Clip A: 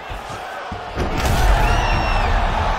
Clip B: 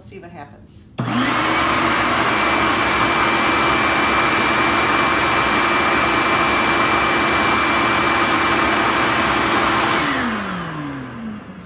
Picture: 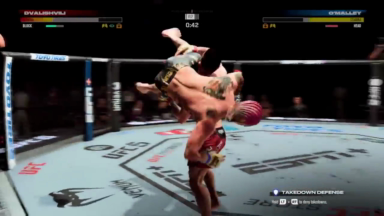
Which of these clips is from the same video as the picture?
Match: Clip A